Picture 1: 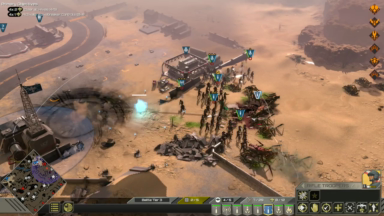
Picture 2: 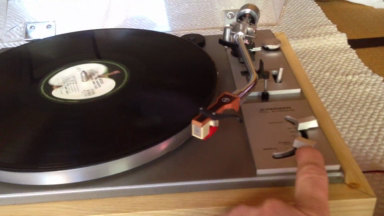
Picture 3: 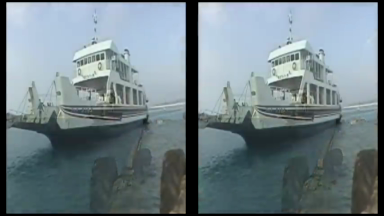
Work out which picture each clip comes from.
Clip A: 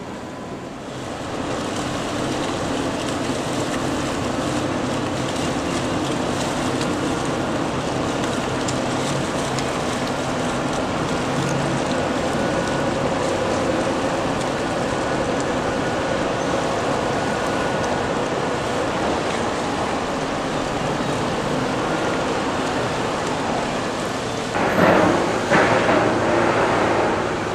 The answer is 3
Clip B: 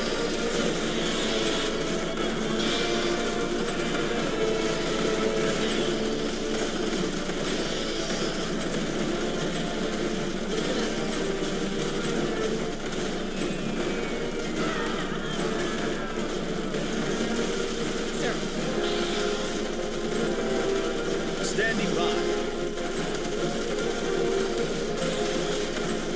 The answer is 1